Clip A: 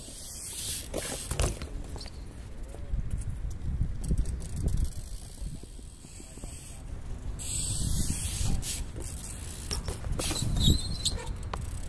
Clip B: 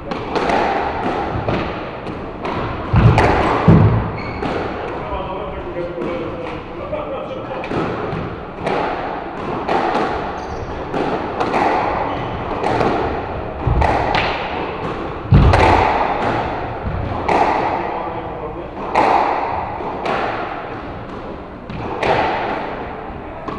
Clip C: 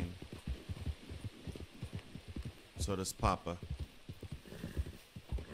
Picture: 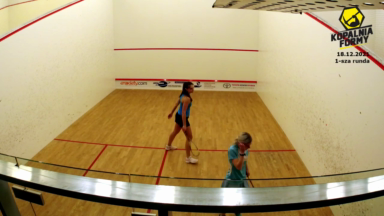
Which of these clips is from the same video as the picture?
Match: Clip B